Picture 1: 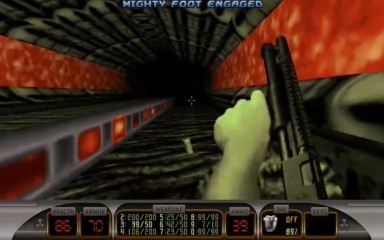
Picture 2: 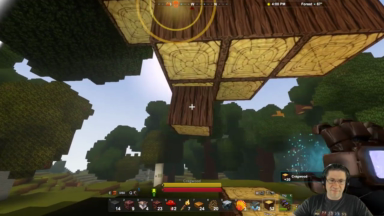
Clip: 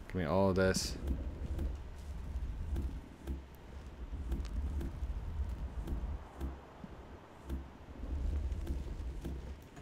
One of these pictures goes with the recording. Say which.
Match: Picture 2